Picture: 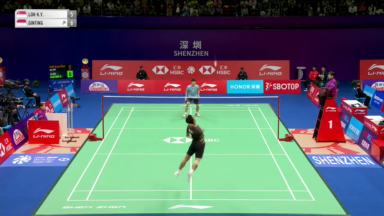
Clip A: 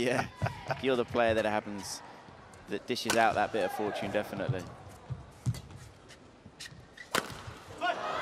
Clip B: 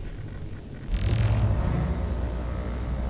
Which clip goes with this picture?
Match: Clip A